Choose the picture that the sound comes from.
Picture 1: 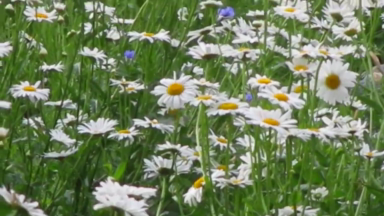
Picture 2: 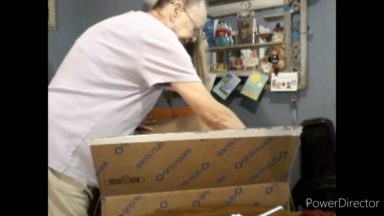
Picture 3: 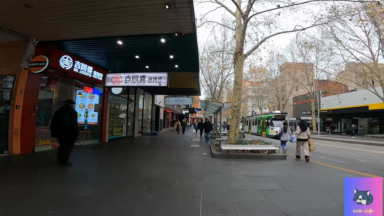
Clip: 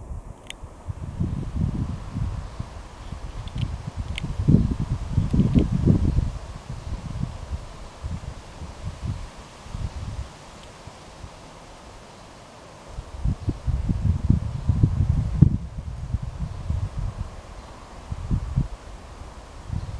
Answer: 1